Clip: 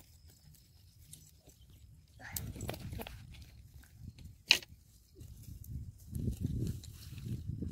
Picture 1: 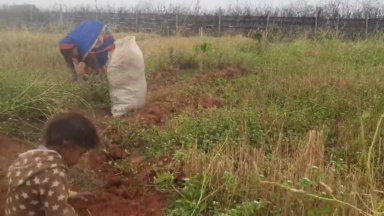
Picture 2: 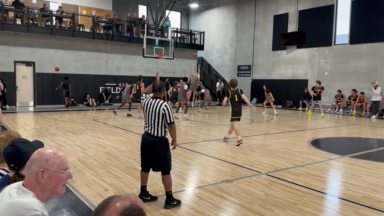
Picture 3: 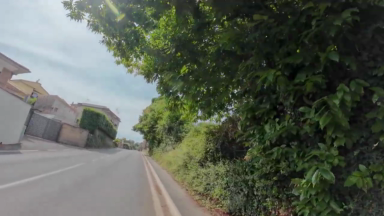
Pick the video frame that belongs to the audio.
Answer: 1